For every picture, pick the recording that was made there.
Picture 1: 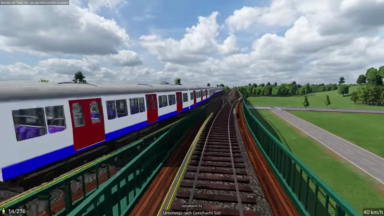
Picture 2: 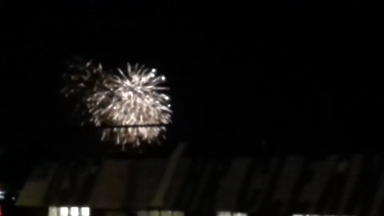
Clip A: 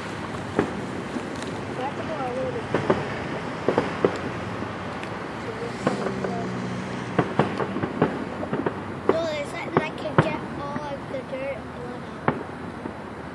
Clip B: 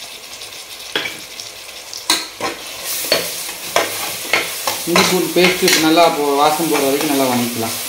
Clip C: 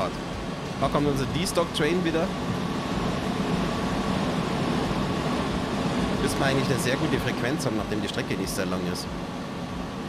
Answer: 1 C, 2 A